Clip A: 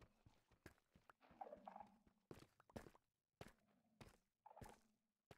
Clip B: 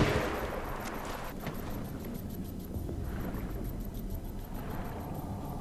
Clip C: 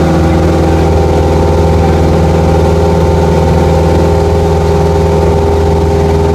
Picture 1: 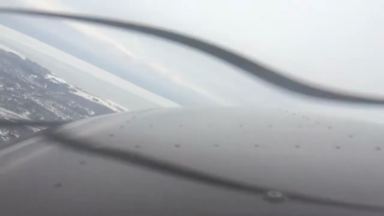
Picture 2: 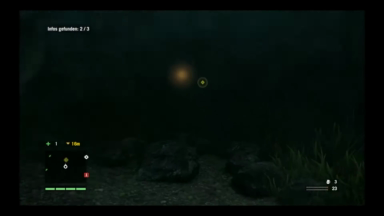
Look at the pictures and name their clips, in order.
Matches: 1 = C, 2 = B